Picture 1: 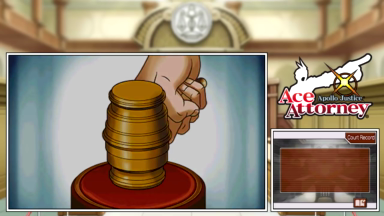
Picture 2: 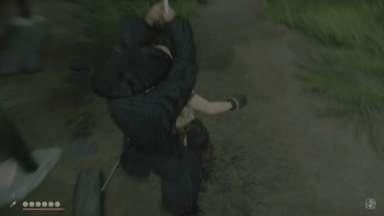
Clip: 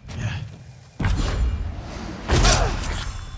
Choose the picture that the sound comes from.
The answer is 2